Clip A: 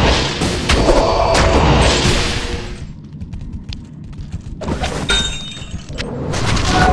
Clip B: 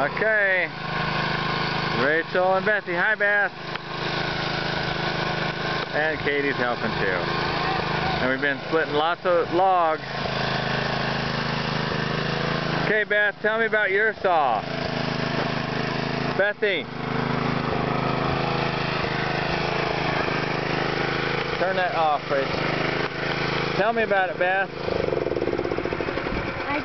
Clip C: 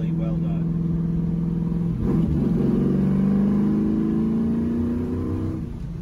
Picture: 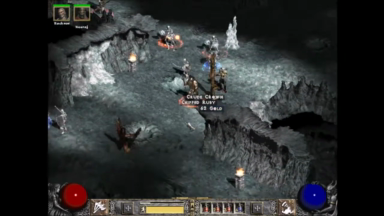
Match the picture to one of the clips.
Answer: A